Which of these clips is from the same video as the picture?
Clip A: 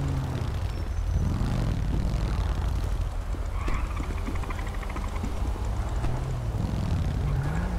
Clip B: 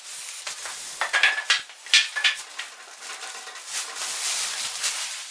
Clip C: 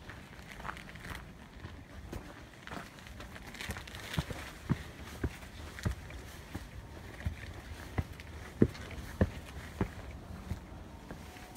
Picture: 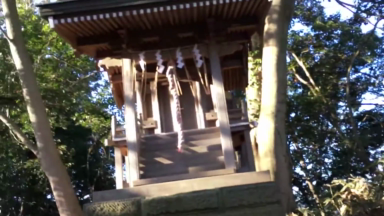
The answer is C